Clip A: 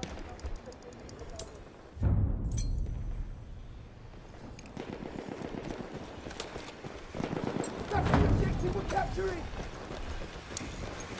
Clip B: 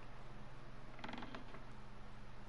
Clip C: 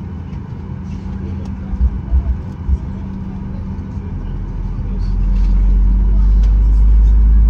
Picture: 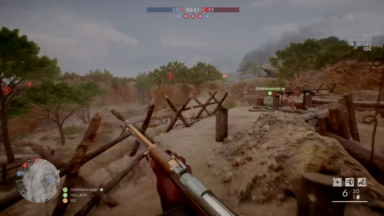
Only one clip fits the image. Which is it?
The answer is A